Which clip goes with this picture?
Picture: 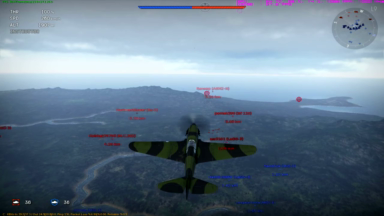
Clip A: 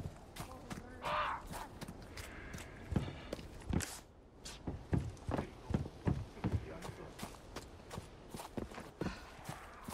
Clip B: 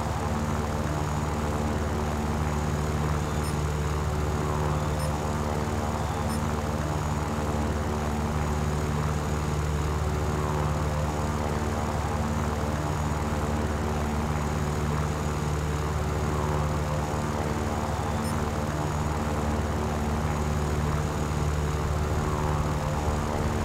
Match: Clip B